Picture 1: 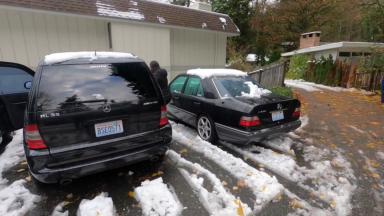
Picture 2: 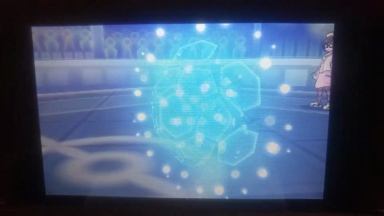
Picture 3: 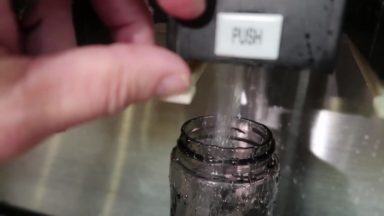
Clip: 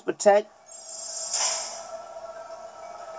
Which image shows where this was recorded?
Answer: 2